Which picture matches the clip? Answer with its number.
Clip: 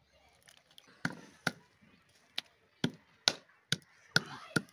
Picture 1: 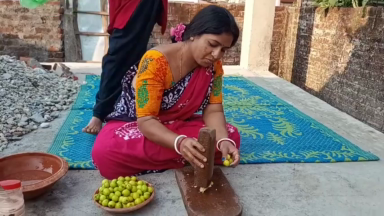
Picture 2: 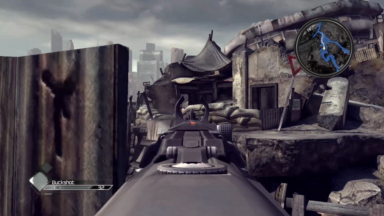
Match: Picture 1